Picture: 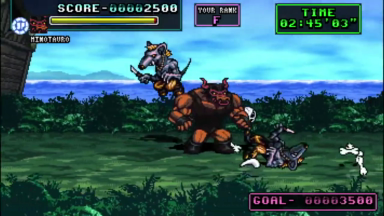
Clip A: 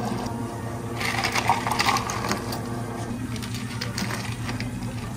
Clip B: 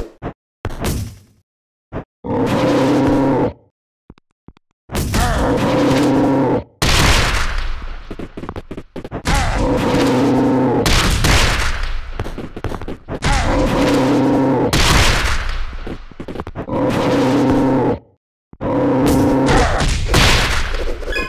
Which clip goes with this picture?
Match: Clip B